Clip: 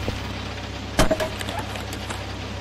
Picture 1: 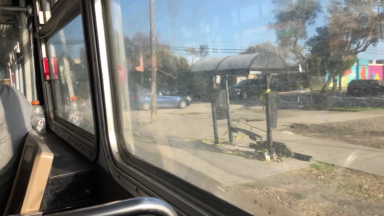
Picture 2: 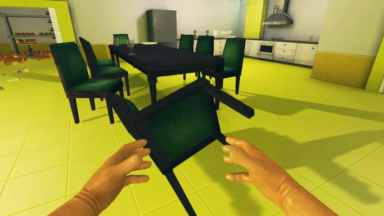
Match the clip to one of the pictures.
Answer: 2